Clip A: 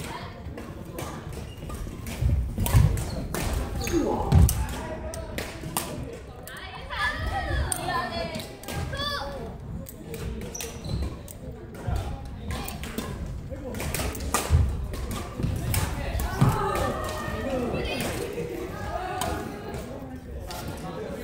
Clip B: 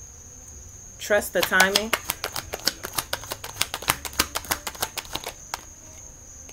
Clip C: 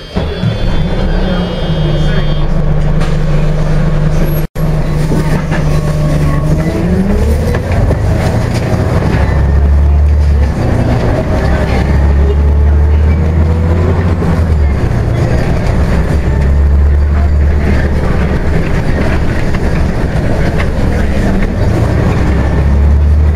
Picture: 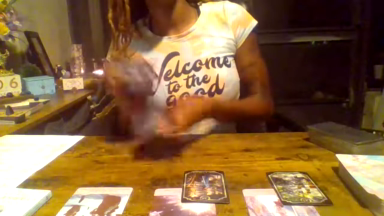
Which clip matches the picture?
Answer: B